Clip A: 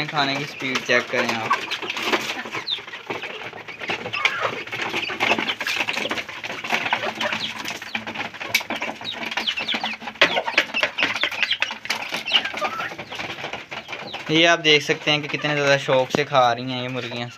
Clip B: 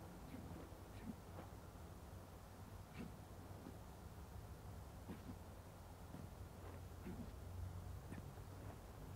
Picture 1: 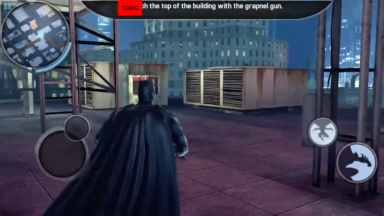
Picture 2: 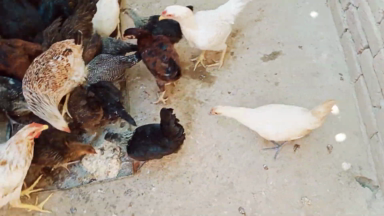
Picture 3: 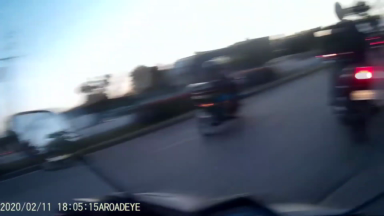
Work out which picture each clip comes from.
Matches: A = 2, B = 1